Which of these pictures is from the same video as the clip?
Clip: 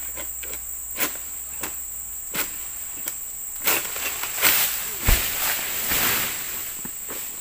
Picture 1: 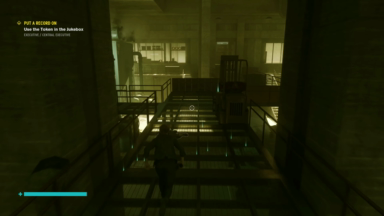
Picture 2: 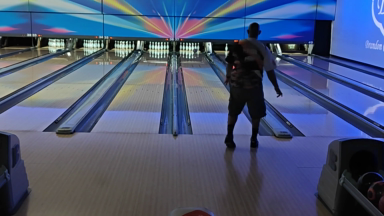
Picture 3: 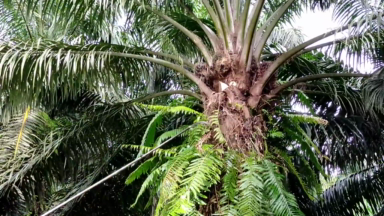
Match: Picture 3